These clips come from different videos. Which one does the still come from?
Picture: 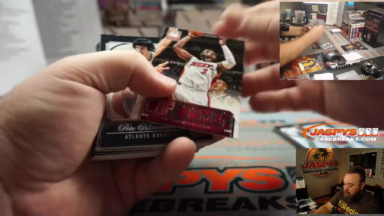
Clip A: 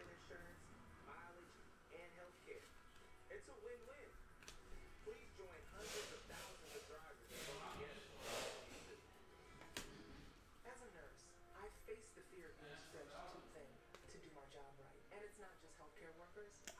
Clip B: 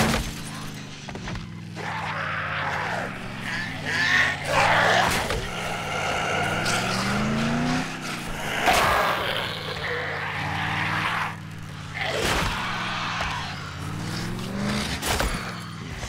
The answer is A